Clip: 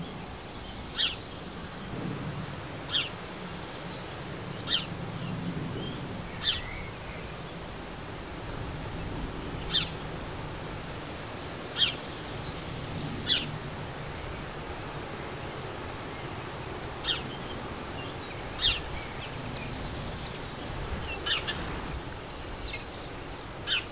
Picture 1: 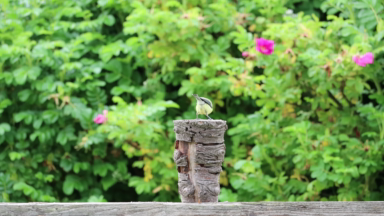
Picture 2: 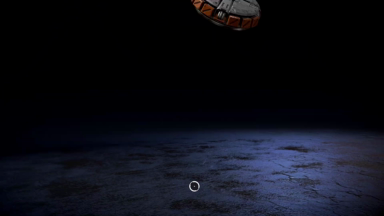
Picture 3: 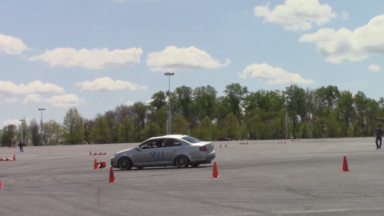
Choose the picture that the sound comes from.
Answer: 1